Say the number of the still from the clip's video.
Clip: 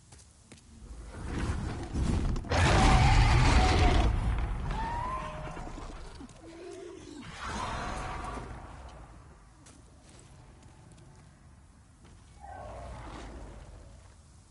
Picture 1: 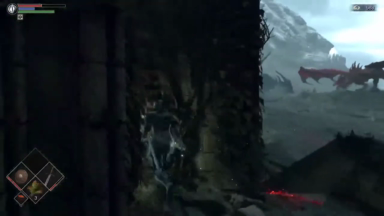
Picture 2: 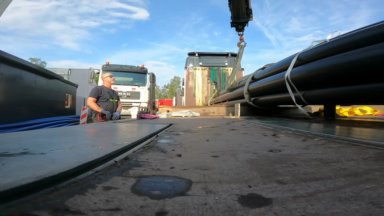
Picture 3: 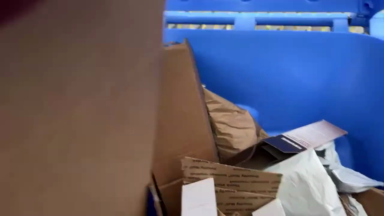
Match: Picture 1